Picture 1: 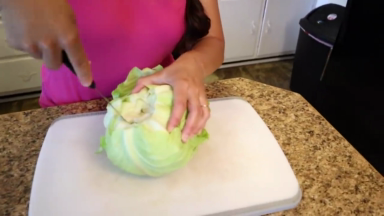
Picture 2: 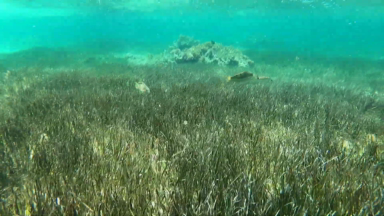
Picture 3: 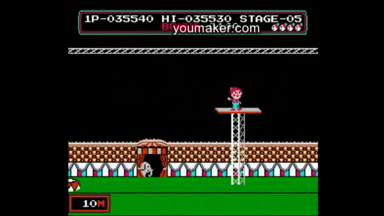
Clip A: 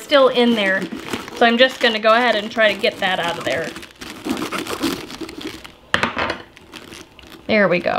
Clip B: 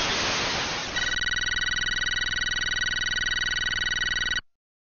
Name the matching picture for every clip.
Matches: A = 1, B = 3